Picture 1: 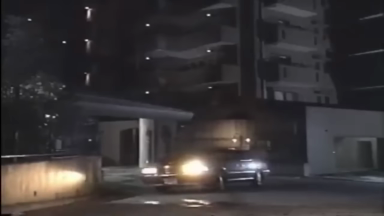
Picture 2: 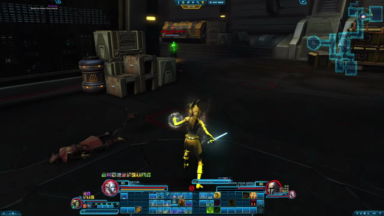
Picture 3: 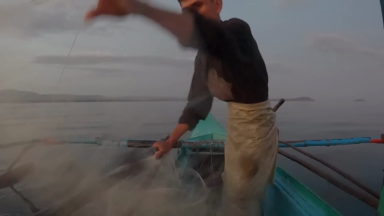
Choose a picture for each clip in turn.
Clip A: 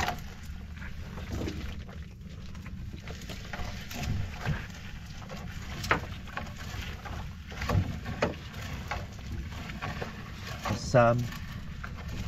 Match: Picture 3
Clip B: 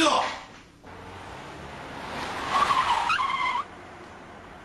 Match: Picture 1